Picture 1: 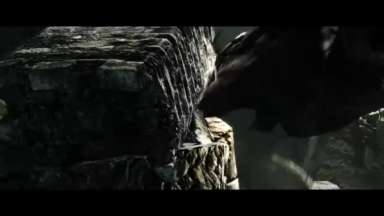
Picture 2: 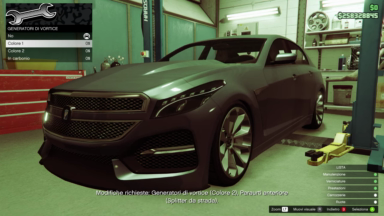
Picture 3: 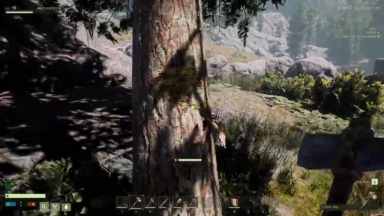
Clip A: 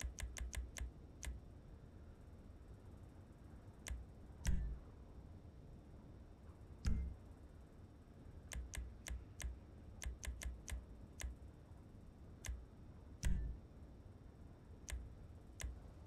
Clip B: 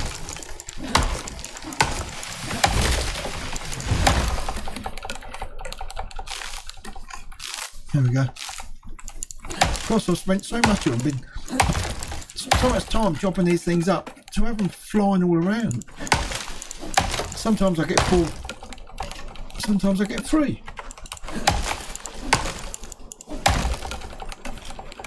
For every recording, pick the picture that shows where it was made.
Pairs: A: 2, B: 3